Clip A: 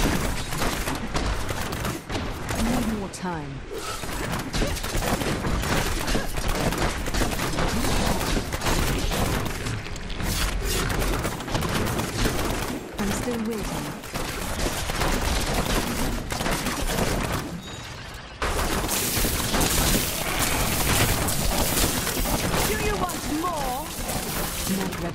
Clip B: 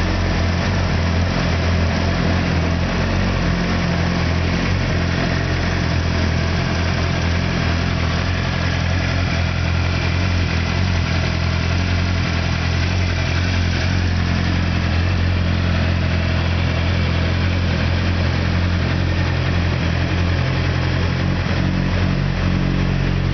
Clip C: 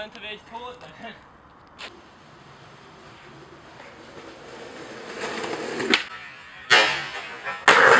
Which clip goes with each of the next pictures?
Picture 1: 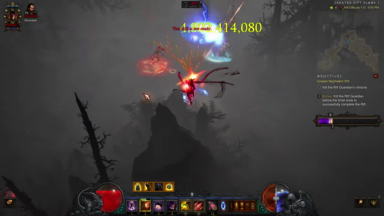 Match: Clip A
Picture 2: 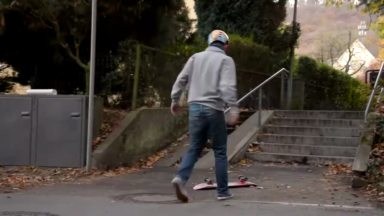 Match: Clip C